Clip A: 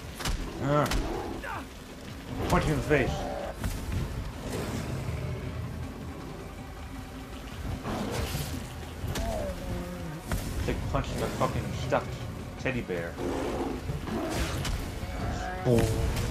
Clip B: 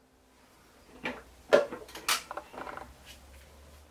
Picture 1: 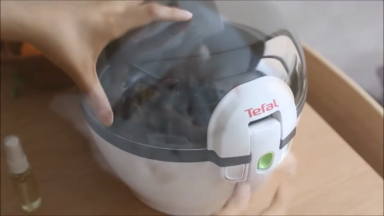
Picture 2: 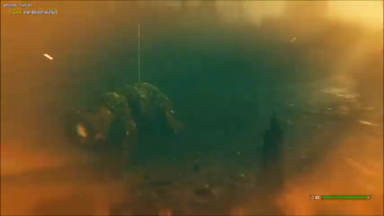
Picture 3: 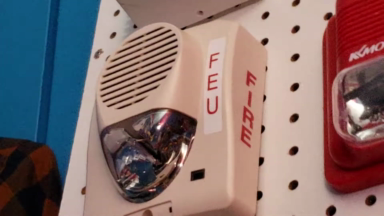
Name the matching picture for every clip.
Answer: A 2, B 1